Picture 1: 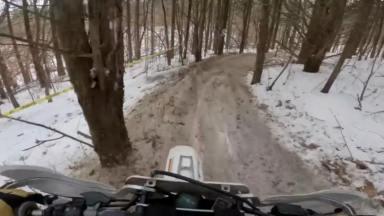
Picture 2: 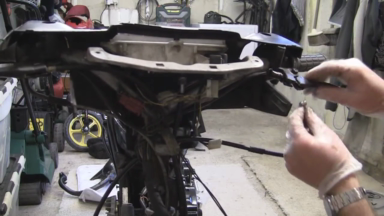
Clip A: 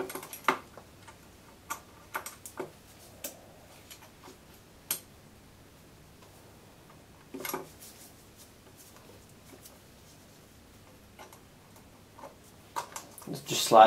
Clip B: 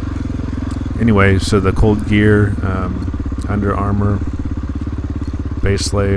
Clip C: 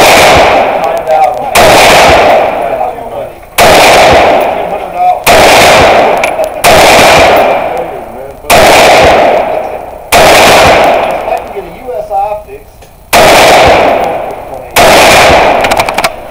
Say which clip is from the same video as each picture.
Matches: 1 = B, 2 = A